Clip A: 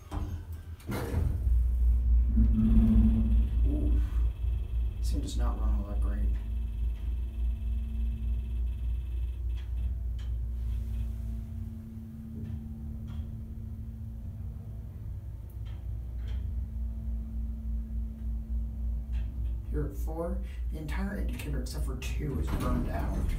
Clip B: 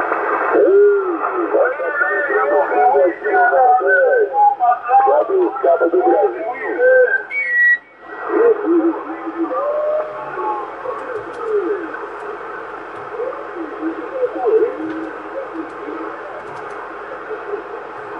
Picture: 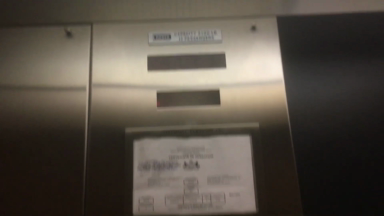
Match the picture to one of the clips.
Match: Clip A